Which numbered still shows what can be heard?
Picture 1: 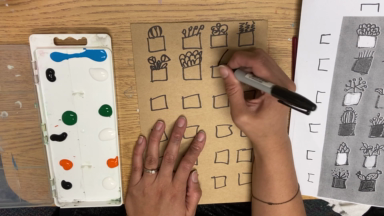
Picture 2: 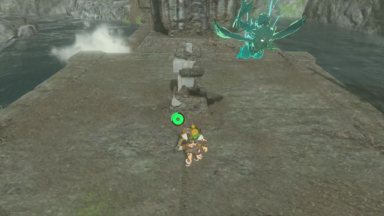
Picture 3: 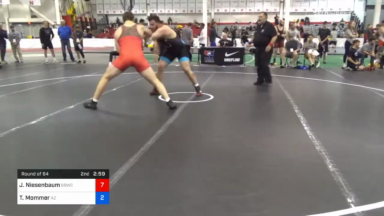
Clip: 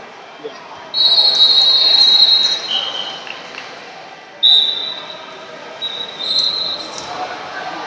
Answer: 3